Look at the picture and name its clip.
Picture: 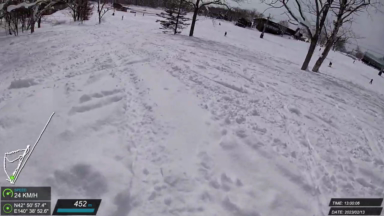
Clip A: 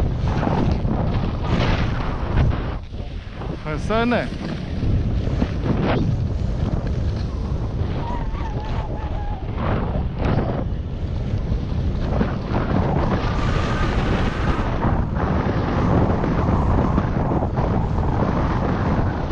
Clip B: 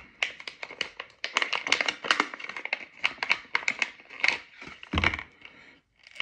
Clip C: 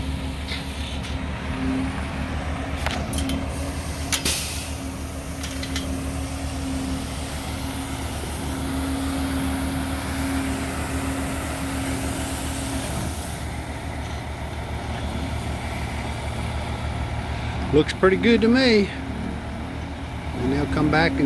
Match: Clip A